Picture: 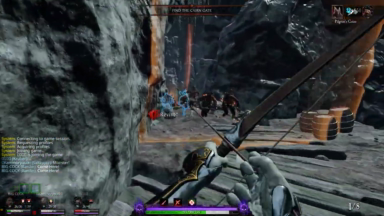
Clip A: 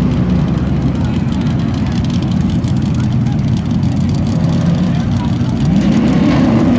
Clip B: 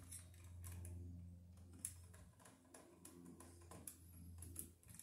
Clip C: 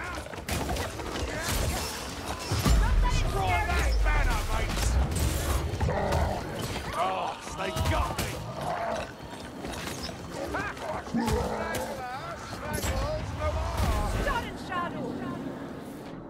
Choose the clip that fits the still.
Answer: C